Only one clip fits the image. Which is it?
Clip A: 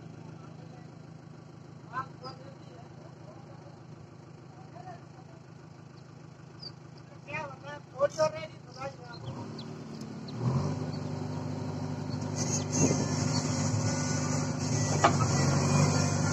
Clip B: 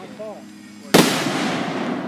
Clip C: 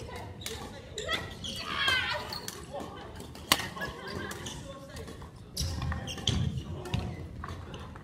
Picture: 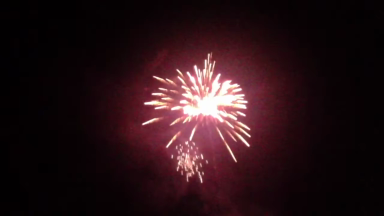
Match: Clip B